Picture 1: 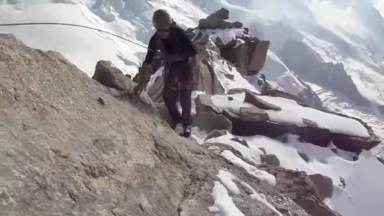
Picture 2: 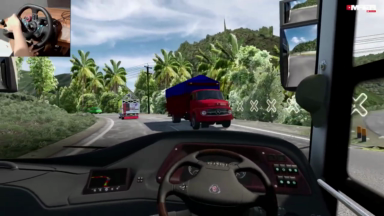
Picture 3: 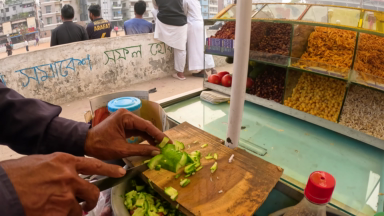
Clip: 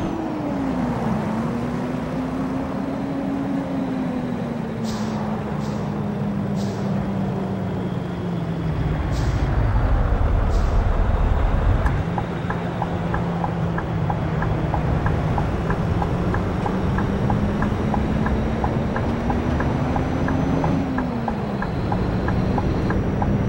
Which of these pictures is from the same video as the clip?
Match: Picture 2